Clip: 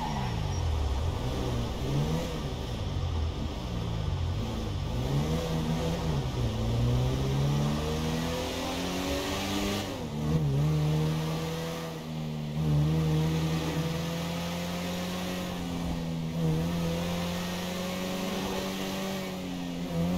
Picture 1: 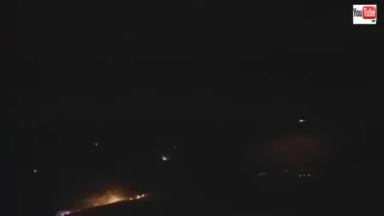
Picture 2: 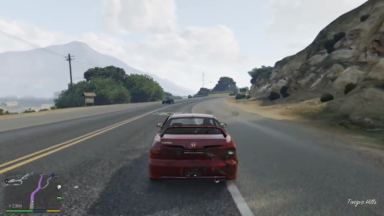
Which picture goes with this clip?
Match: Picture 2